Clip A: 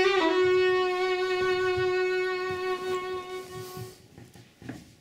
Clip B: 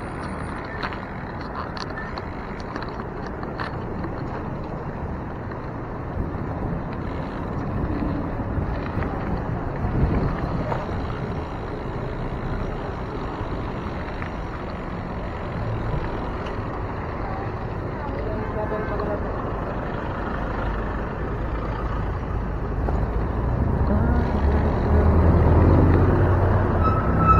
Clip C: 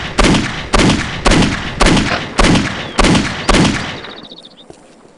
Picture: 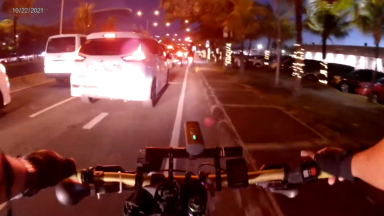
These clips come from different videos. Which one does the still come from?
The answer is B